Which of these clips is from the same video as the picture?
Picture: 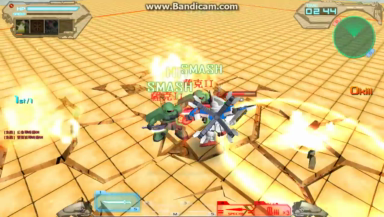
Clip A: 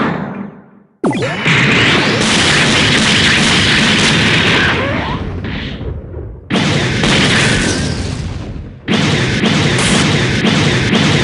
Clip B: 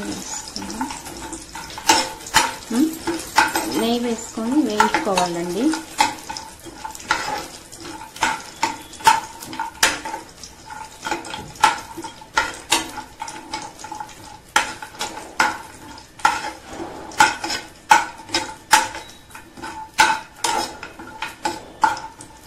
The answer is A